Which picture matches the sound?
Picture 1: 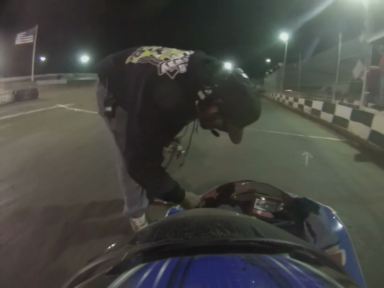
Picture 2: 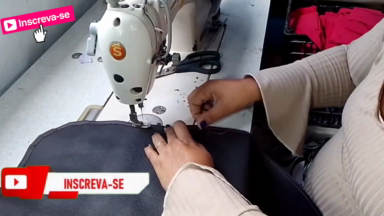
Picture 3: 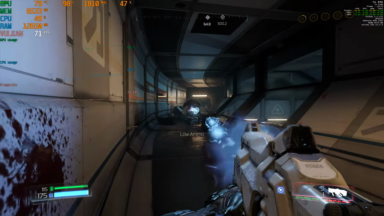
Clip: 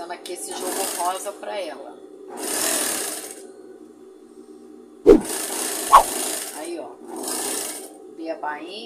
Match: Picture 2